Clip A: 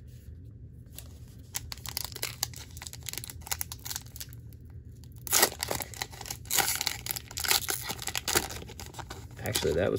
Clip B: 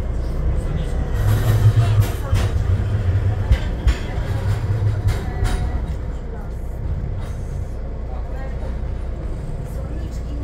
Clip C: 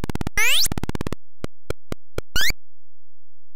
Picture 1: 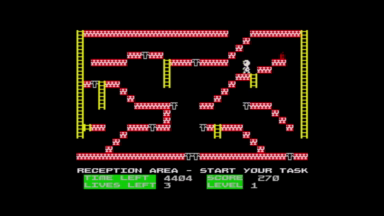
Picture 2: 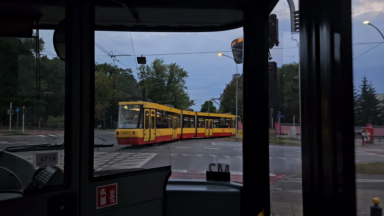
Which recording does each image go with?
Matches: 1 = C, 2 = B